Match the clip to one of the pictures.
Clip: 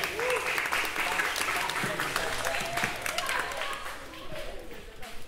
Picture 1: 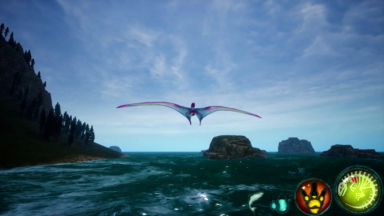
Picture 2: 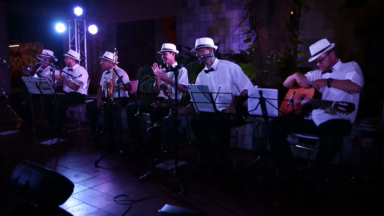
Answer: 2